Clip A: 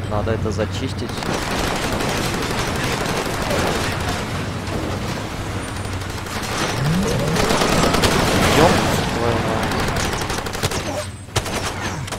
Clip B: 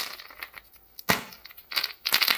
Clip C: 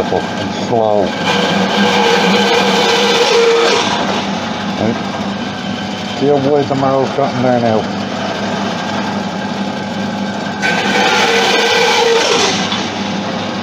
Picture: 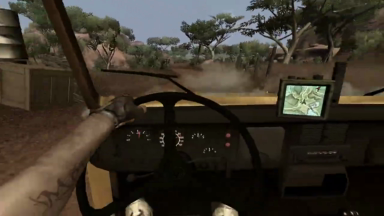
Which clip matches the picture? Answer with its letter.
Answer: A